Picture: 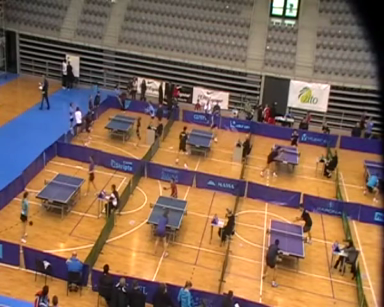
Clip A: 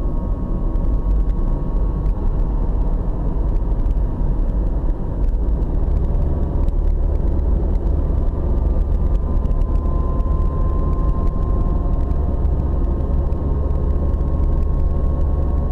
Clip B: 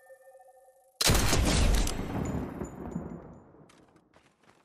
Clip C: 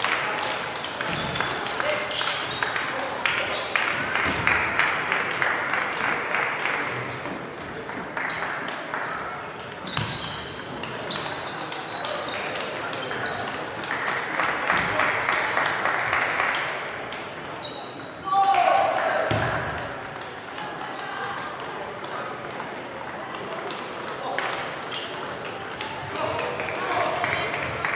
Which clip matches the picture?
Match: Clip C